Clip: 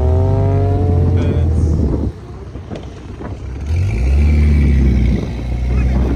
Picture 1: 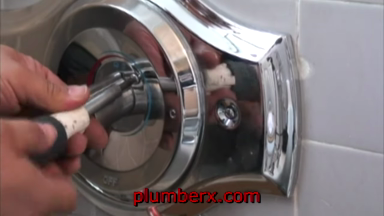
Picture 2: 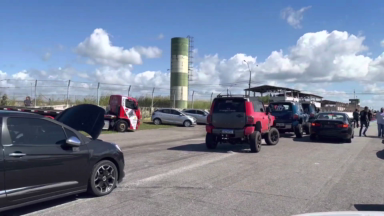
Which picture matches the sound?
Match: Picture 2